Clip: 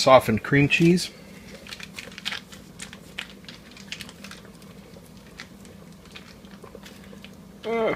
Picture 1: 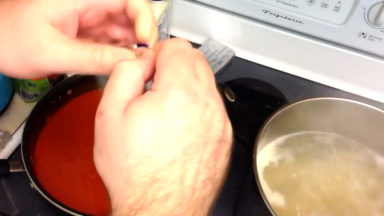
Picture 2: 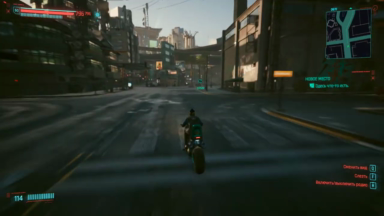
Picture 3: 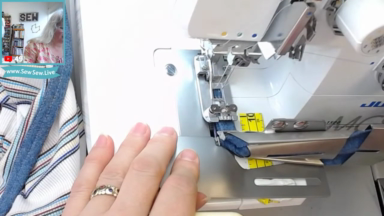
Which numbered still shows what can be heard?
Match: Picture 1